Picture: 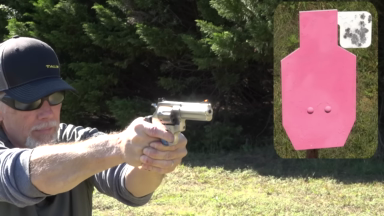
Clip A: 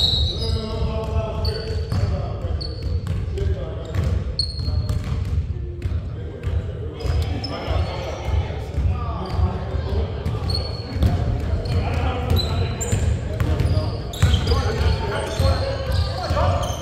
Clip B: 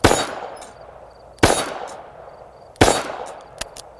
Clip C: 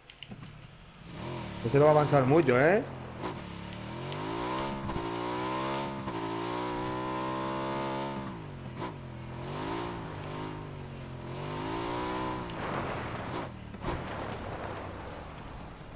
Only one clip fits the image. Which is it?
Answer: B